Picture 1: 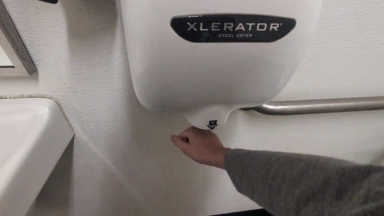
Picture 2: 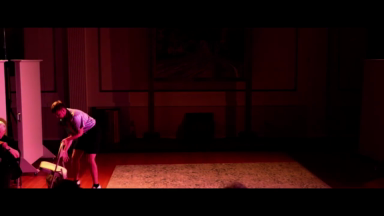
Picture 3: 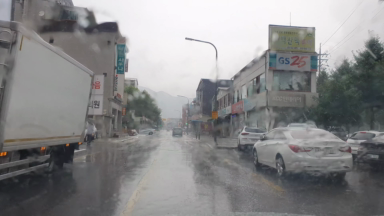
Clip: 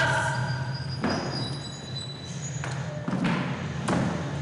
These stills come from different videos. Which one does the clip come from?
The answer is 2